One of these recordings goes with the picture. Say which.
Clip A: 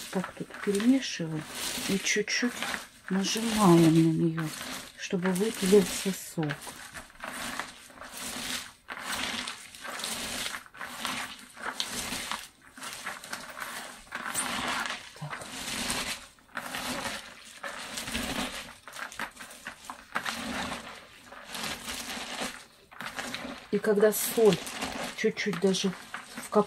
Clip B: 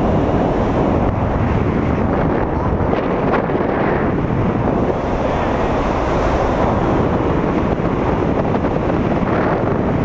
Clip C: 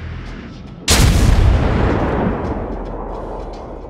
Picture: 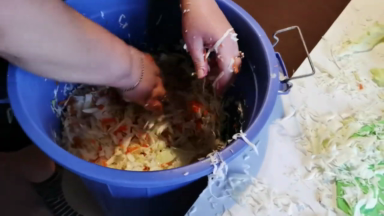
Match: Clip A